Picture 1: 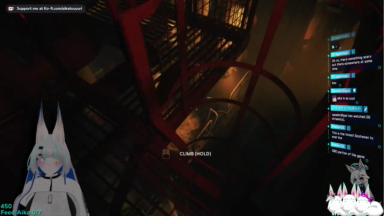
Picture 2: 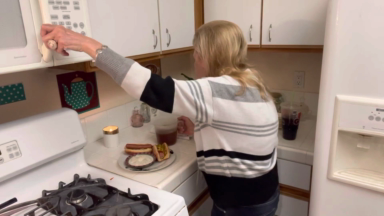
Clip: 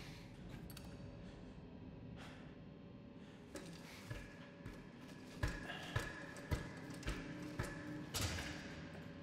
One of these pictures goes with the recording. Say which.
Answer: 1